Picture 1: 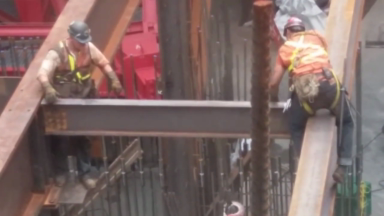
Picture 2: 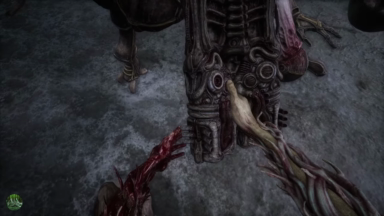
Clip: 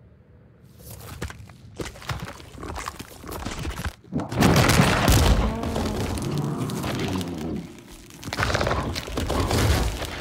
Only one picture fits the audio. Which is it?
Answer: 2